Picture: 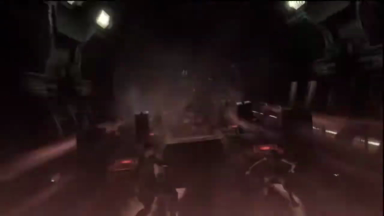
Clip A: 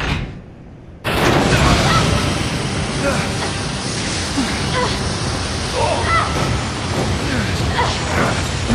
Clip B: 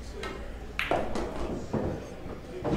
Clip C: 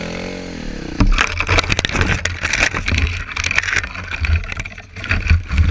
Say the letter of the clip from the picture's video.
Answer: A